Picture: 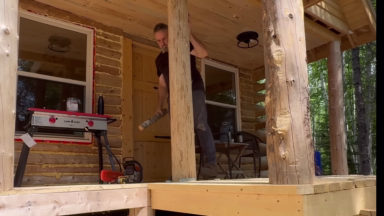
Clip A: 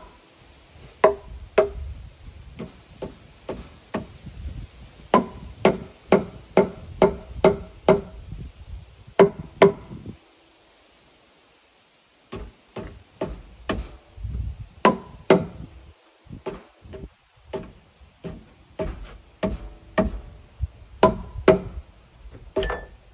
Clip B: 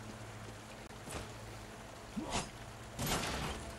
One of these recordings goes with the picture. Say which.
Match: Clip A